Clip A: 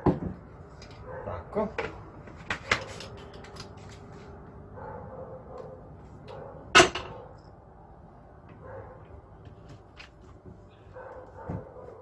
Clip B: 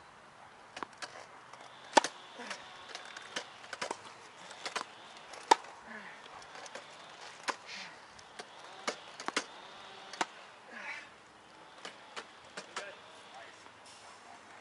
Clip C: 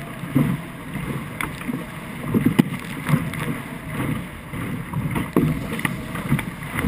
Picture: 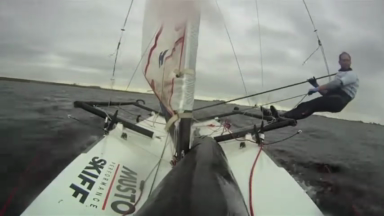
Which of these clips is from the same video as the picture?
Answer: C